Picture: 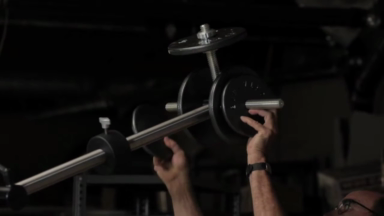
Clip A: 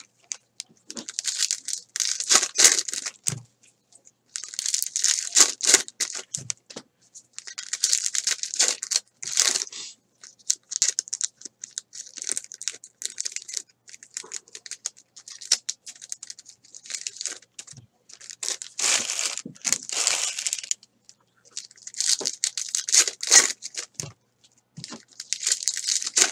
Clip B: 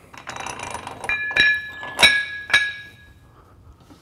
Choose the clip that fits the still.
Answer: B